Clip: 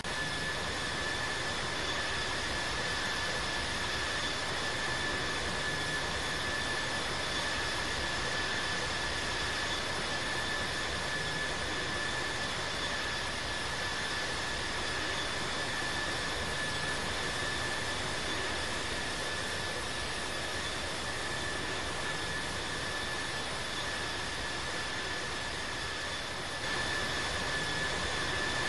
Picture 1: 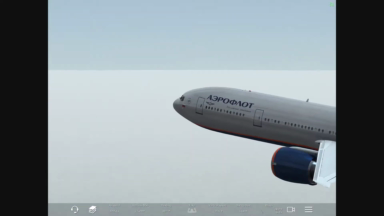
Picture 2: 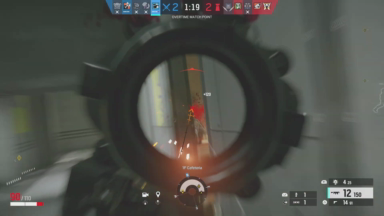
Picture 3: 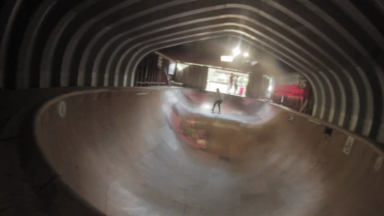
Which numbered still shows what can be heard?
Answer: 1